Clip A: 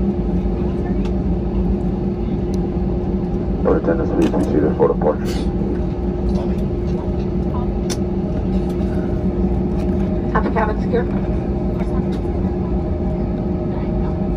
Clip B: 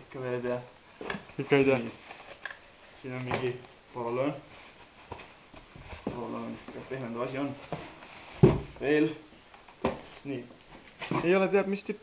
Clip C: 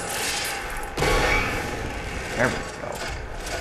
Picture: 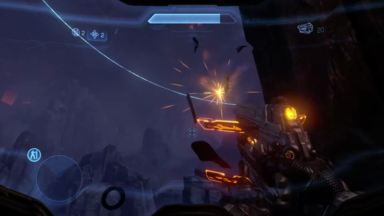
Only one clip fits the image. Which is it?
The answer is C